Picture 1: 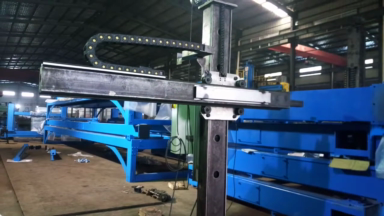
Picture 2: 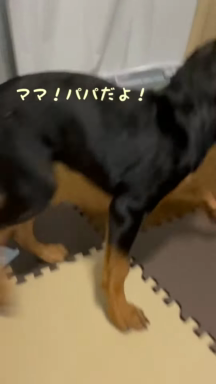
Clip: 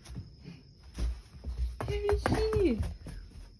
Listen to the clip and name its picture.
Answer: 2